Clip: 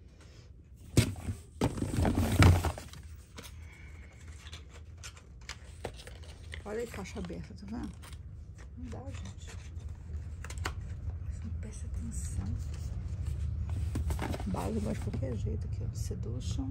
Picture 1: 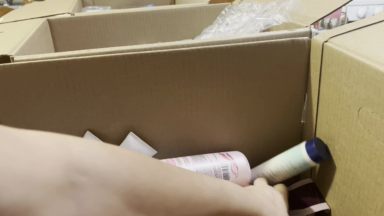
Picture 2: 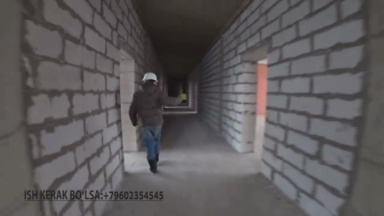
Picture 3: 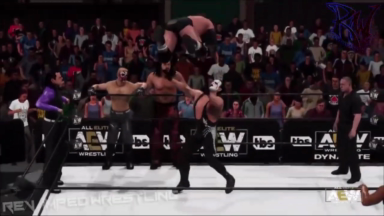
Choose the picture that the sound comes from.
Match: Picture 1